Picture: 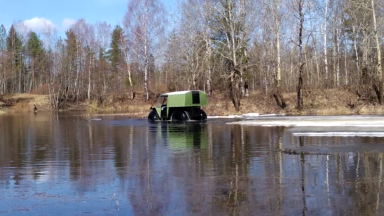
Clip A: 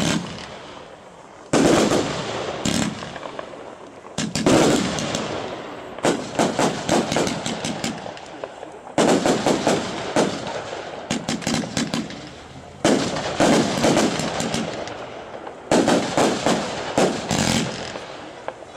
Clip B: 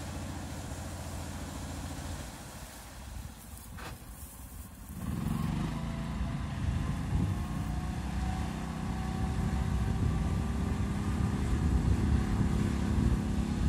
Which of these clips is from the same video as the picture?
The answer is B